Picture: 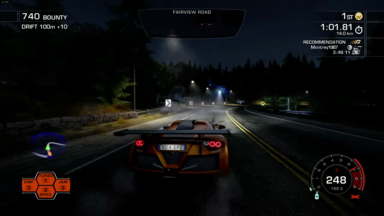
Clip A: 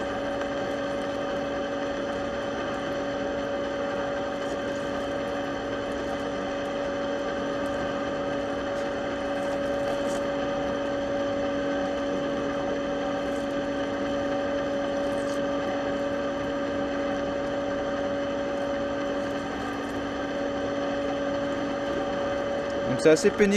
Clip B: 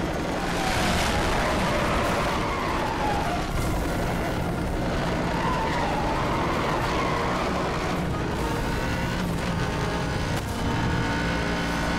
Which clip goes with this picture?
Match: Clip B